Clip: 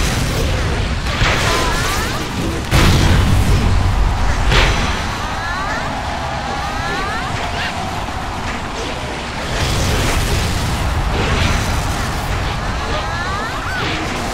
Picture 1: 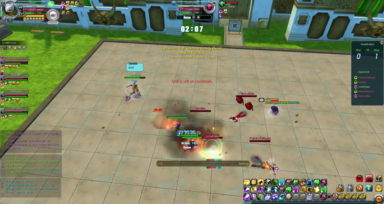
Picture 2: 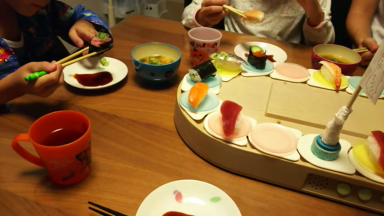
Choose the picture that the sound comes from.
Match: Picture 1